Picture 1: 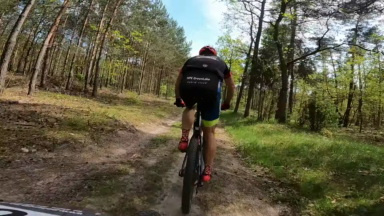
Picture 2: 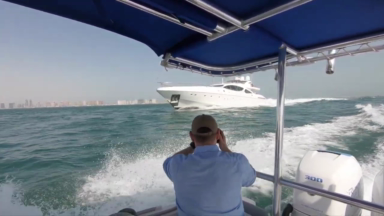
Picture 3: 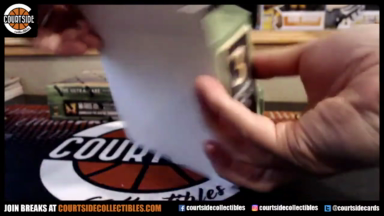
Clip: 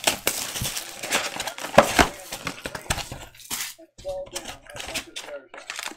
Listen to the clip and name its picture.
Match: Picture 3